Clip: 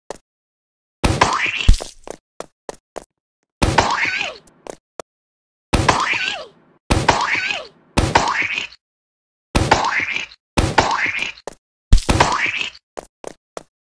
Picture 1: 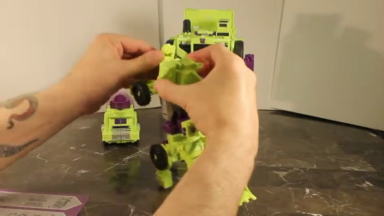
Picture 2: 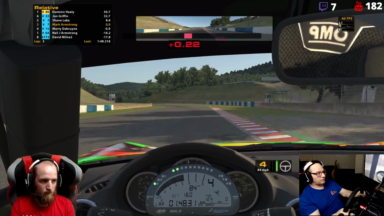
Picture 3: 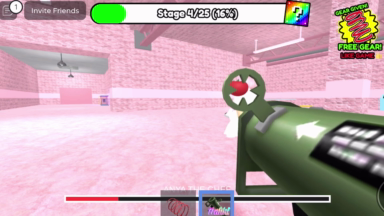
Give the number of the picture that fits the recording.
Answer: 3